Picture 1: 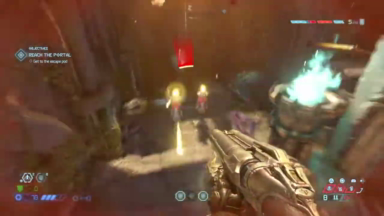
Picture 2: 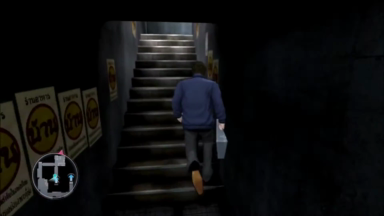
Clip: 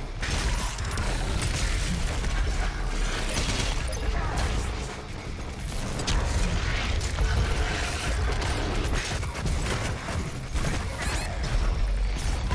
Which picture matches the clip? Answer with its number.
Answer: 1